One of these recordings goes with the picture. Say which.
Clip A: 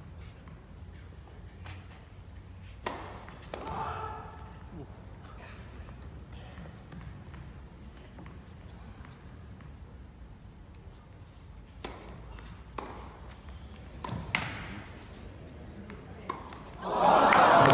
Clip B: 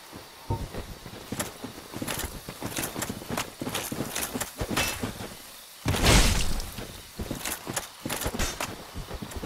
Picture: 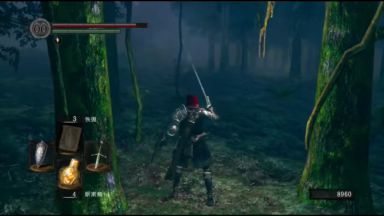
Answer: B